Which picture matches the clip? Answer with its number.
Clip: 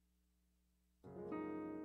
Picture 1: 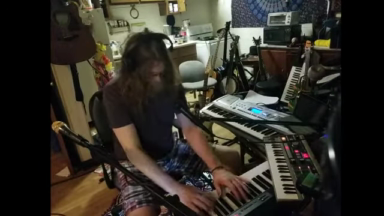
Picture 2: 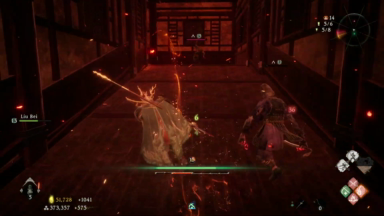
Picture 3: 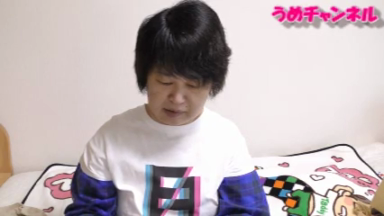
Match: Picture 1